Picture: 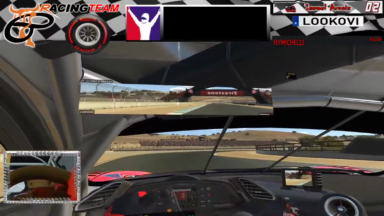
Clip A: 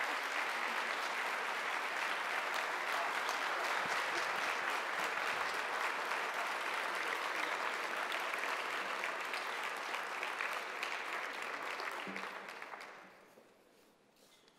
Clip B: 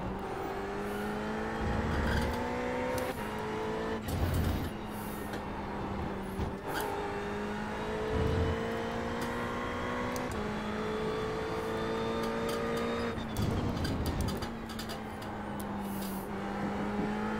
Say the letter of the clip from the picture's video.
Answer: B